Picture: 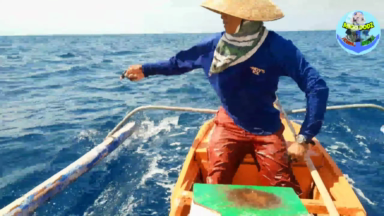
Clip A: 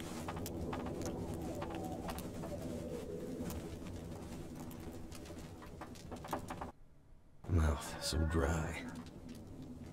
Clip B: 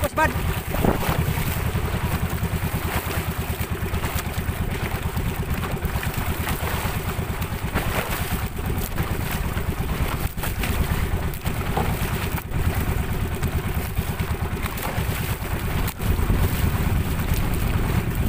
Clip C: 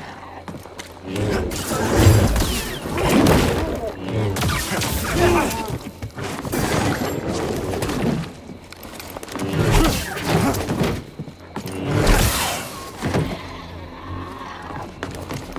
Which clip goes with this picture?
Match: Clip B